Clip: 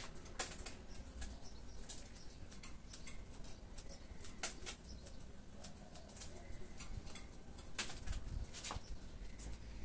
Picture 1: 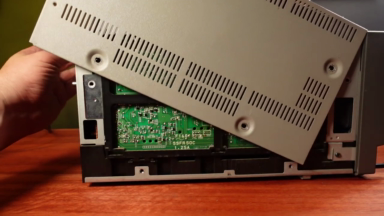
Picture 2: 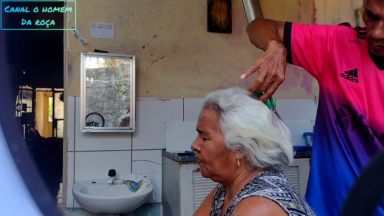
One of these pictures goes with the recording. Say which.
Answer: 2